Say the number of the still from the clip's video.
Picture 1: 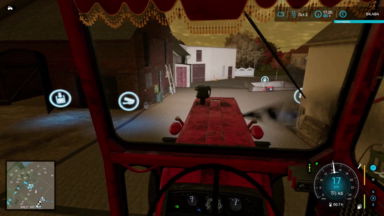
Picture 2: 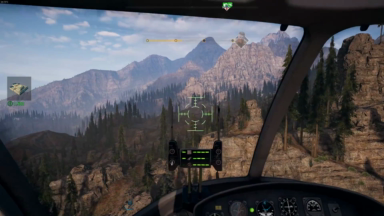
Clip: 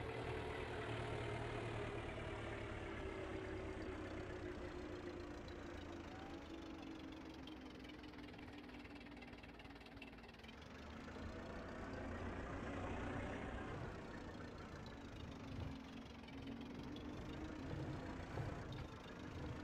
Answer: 1